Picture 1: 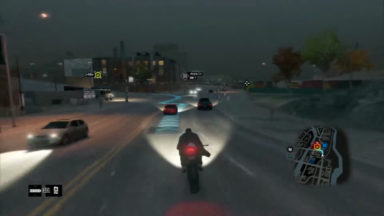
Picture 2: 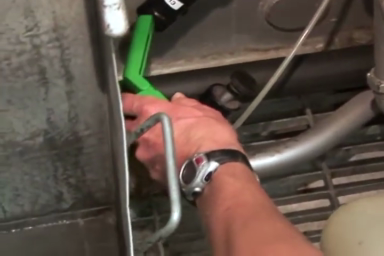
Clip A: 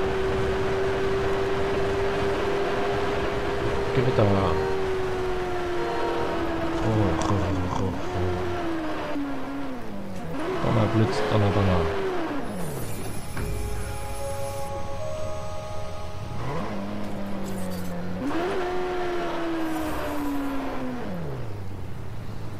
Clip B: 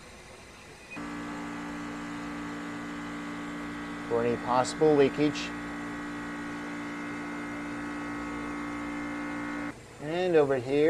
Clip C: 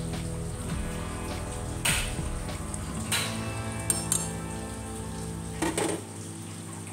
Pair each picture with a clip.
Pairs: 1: A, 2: B